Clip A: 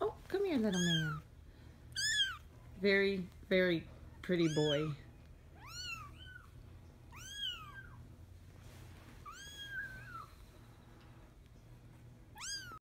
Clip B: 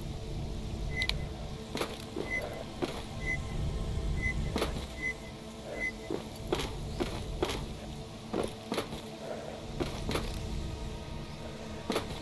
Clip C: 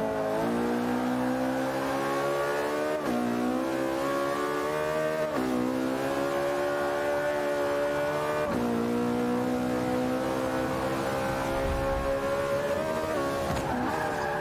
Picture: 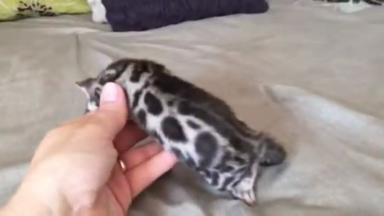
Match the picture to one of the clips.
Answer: A